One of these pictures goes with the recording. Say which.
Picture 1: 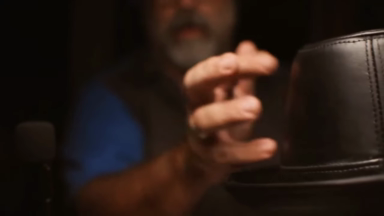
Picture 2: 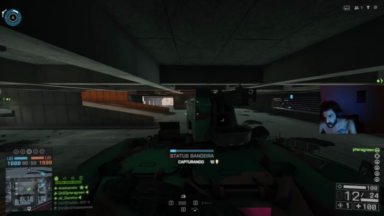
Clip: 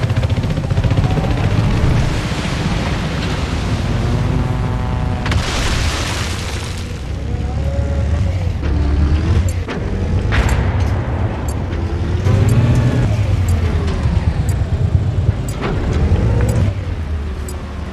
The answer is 2